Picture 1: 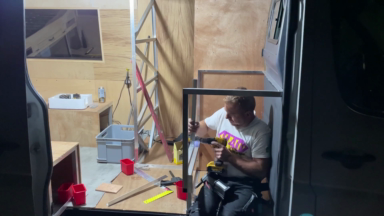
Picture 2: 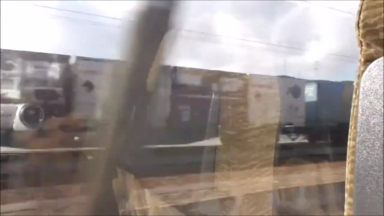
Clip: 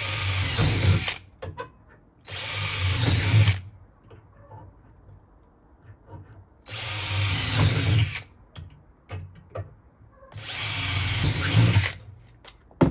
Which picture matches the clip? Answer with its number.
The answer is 1